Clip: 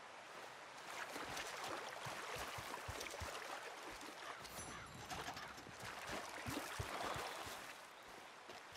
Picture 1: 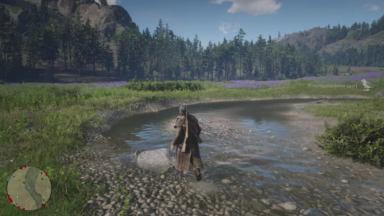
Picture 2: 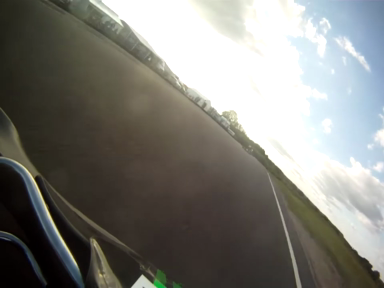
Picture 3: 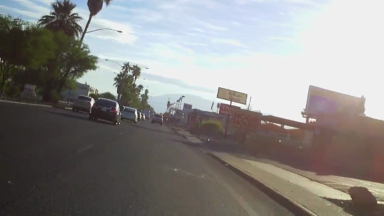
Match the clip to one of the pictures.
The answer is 1